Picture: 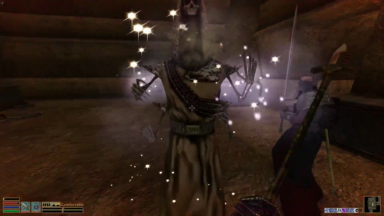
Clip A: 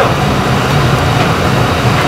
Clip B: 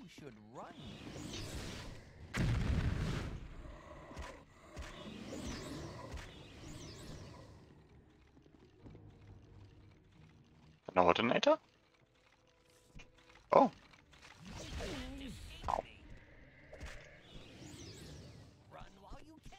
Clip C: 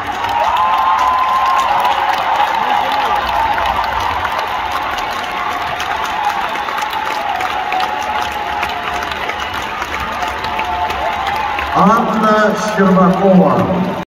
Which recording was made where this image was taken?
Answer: B